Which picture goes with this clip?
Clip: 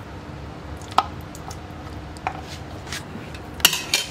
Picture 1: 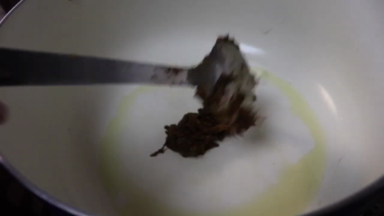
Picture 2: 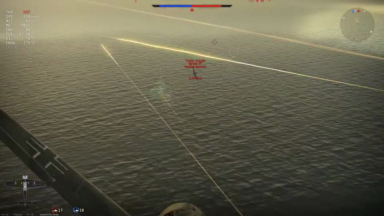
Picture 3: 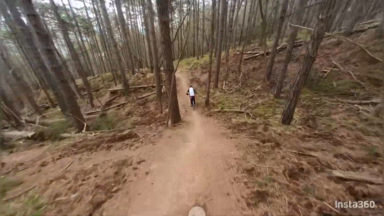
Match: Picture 1